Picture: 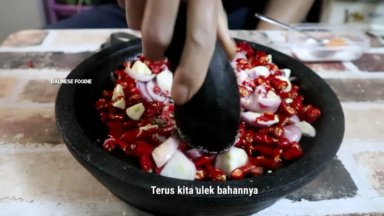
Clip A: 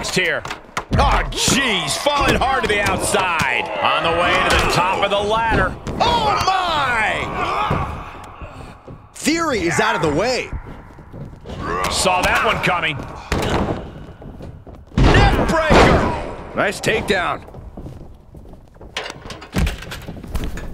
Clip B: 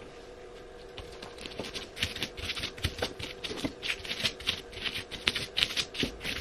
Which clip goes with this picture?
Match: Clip B